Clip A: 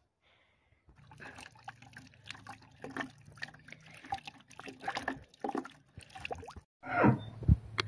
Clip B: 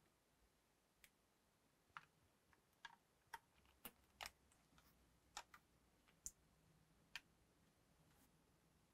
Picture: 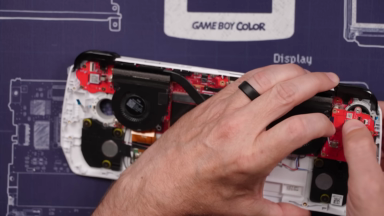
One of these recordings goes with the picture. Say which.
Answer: B